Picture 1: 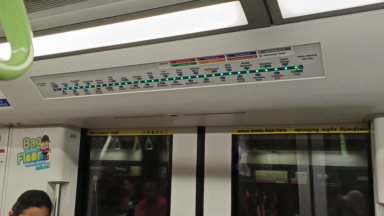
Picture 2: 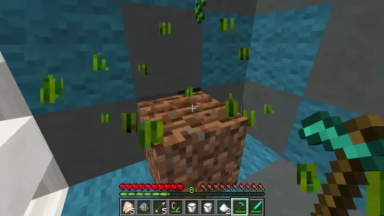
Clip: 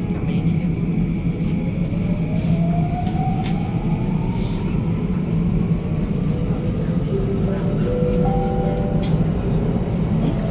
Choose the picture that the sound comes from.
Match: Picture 1